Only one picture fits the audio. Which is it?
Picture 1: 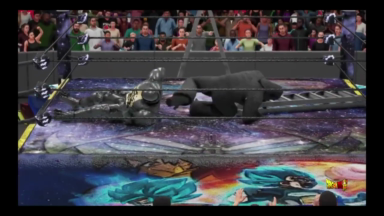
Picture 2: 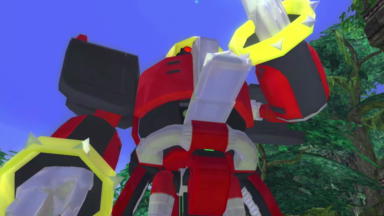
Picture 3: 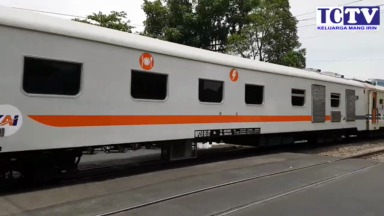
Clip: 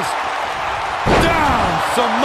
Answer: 1